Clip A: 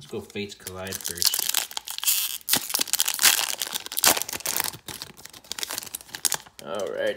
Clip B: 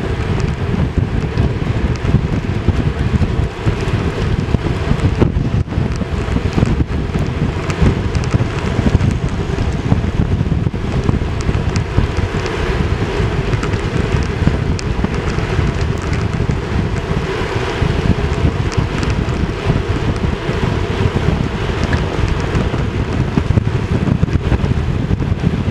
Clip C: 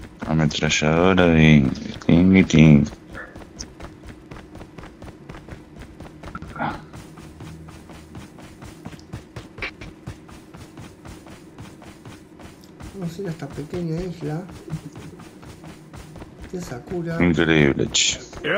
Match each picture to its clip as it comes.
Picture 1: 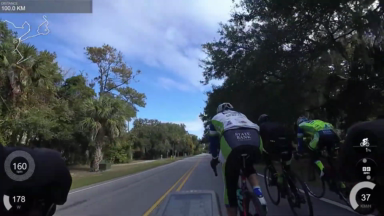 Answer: B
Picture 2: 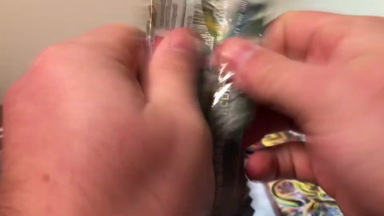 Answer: A